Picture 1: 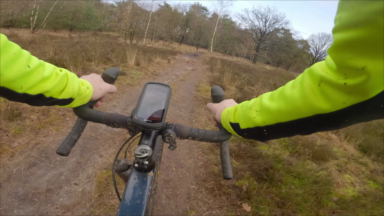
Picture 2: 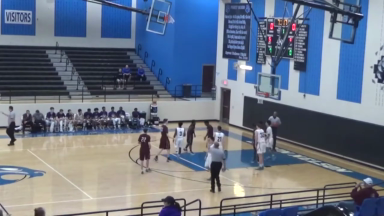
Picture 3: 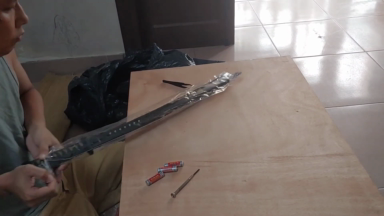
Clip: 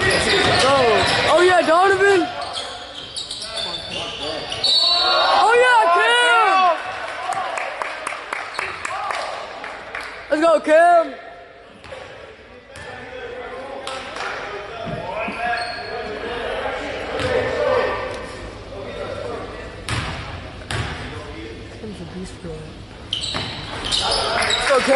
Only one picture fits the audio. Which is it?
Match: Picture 2